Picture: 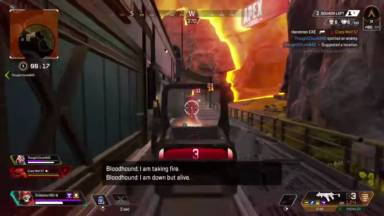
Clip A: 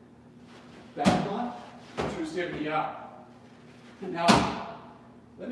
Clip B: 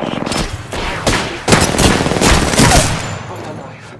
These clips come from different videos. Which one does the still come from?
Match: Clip B